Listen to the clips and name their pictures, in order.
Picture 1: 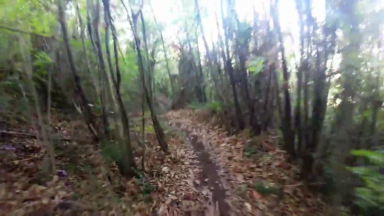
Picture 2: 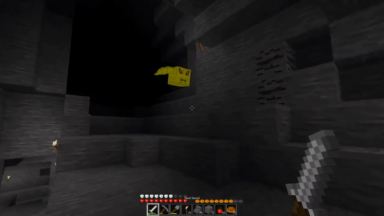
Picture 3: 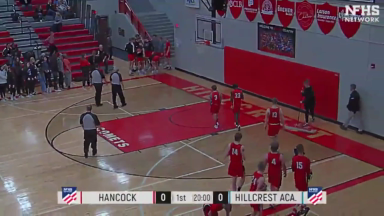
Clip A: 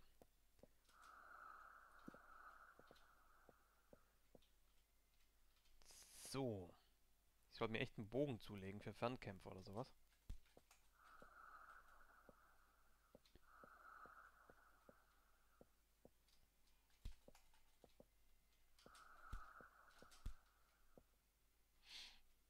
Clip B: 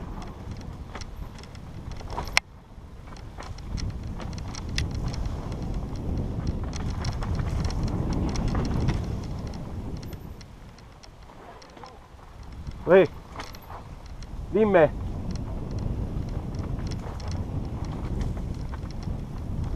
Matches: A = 2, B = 1